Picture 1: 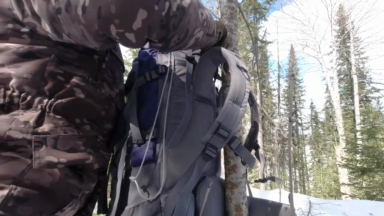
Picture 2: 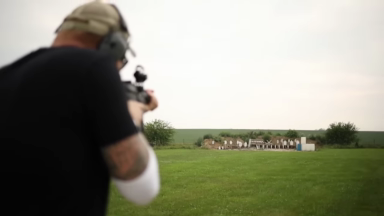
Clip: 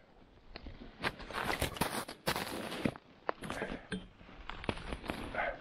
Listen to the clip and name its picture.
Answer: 1